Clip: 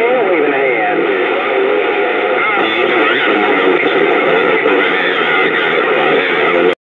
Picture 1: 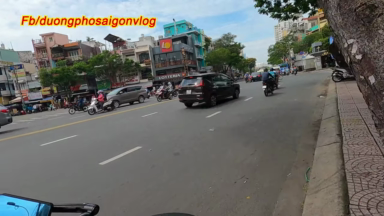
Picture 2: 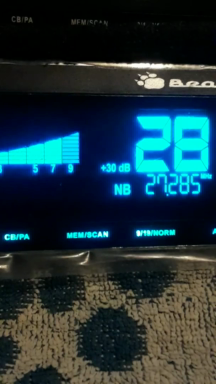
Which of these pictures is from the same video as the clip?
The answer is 2